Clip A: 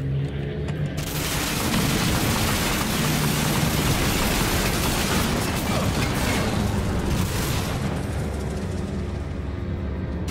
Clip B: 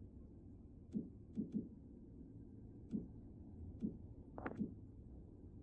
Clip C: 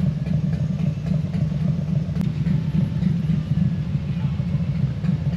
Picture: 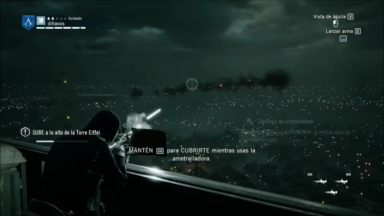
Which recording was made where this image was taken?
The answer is A